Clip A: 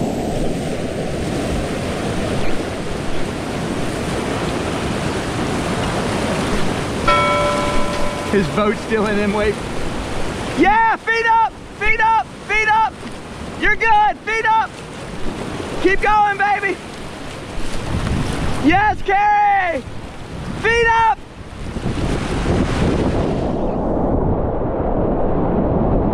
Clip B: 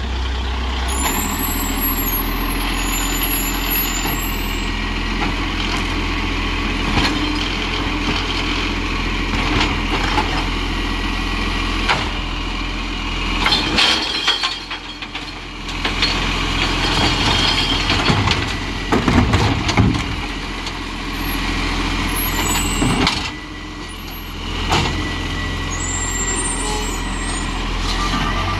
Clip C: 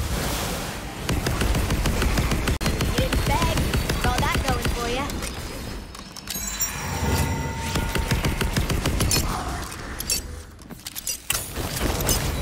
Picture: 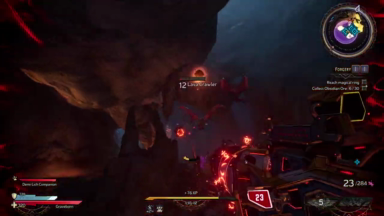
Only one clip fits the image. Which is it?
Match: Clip C